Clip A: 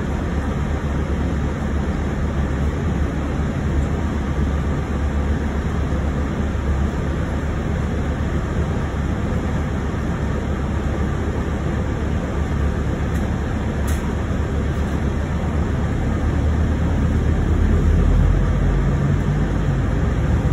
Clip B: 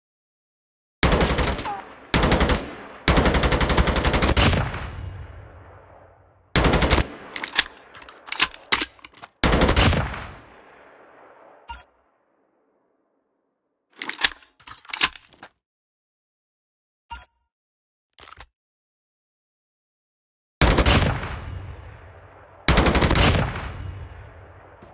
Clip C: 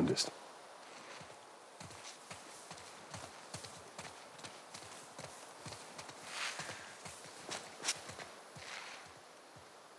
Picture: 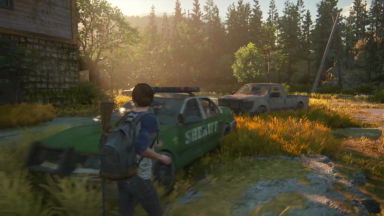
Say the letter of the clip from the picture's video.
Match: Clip C